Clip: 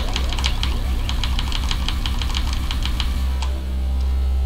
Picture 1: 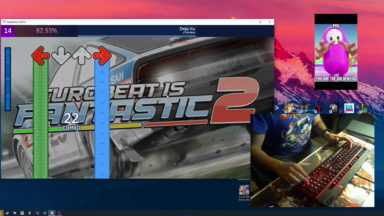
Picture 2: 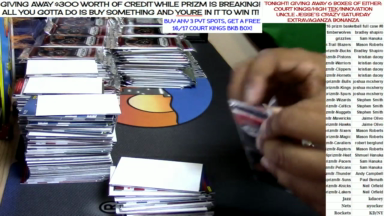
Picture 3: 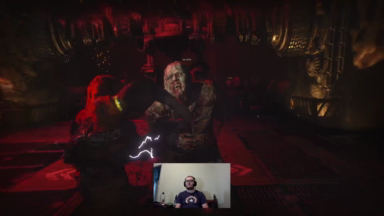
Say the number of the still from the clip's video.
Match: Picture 1